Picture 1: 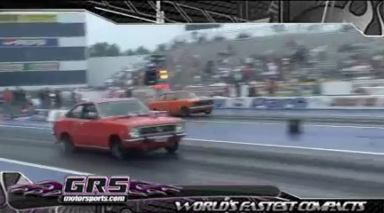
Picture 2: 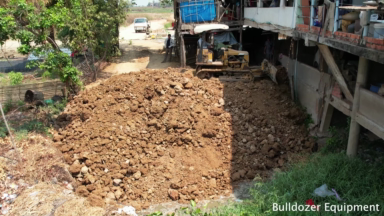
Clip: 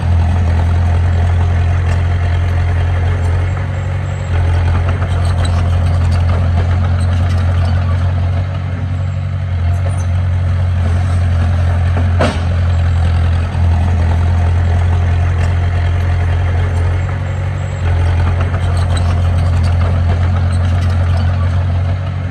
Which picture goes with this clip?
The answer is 2